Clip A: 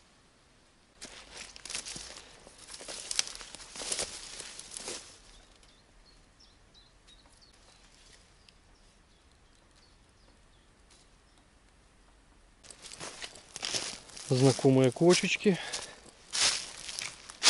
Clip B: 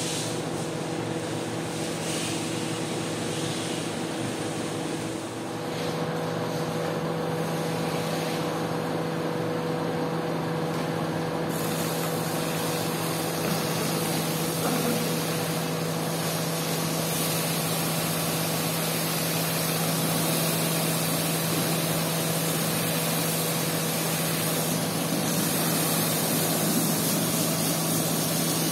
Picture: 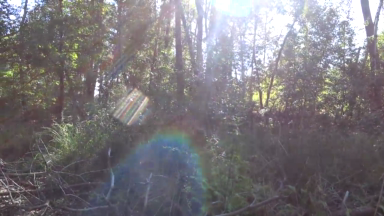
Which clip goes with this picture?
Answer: A